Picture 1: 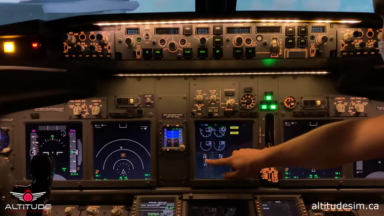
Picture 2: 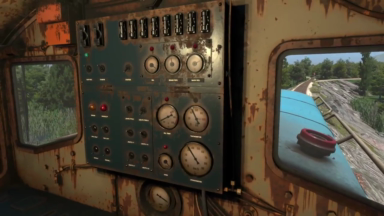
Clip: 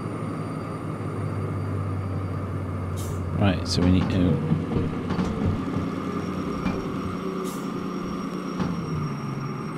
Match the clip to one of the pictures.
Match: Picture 2